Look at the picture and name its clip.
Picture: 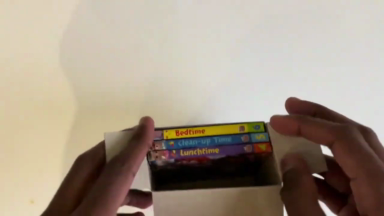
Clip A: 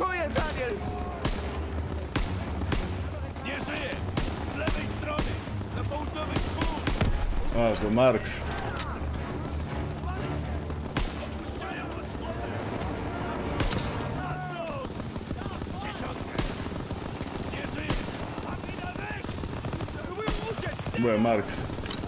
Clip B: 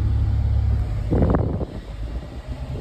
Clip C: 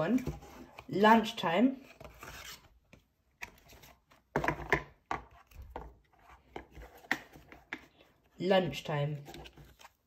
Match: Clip C